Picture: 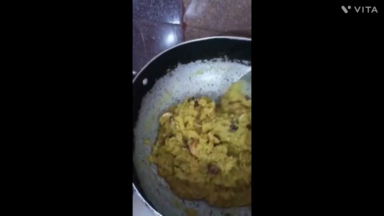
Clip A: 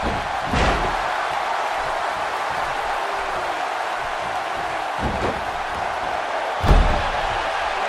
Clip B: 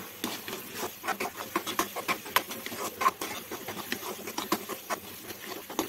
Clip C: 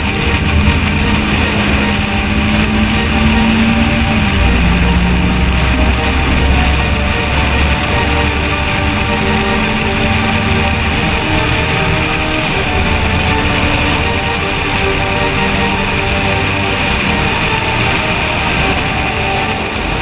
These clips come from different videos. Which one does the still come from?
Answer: B